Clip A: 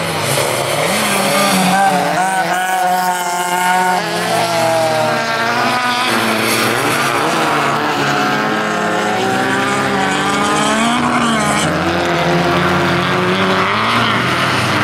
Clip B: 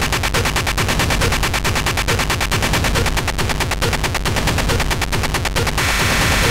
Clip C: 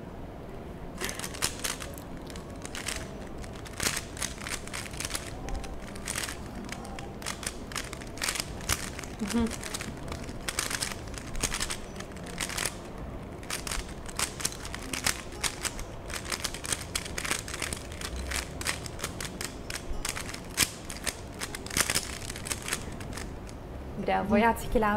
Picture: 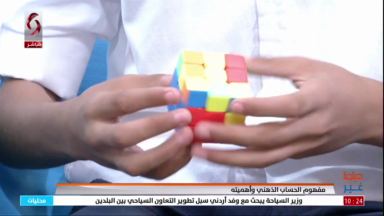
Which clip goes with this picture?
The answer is C